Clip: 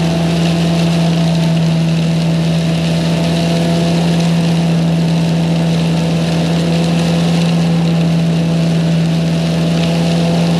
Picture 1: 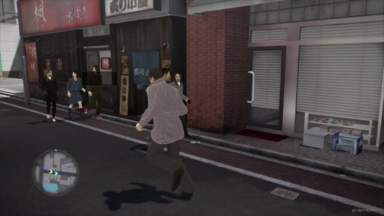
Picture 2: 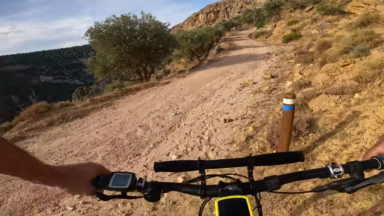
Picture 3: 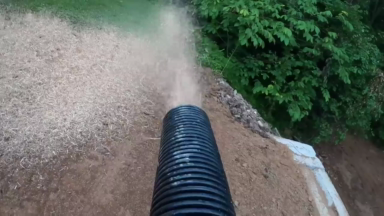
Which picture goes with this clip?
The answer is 3